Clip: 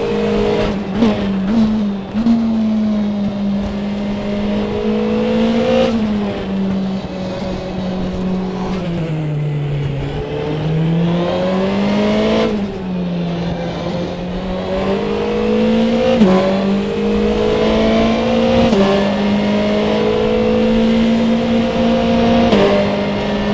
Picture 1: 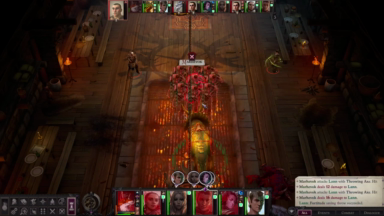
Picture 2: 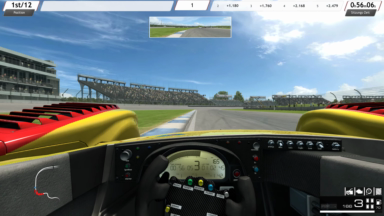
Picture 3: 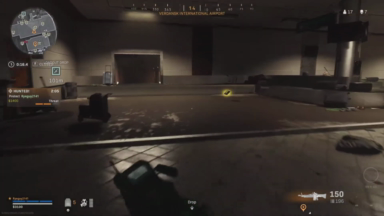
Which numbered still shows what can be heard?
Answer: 2